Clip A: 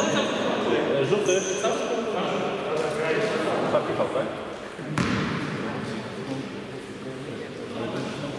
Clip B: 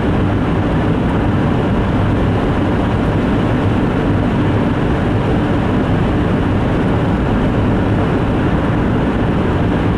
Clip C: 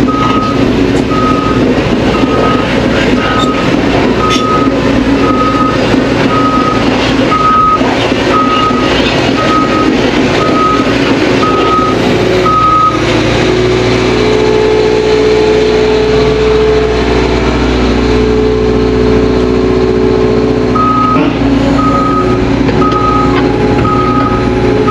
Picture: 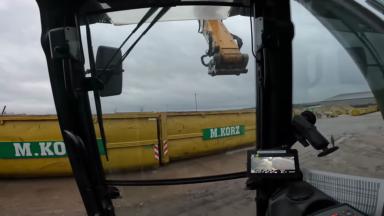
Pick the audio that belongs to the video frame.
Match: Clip C